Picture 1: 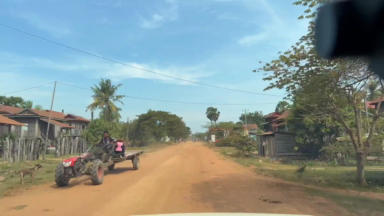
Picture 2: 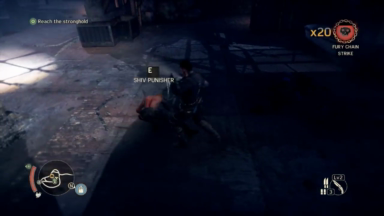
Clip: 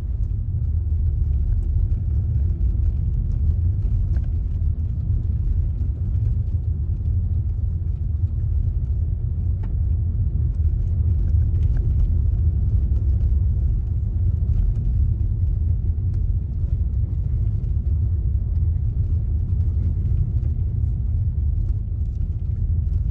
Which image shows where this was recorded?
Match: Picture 1